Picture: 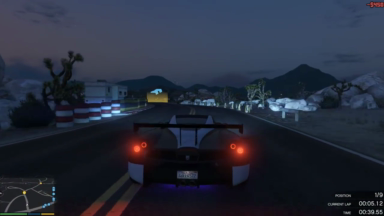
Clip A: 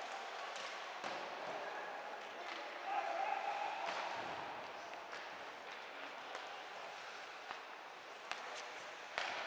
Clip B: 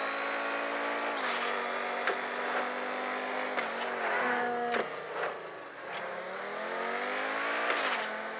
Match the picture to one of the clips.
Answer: B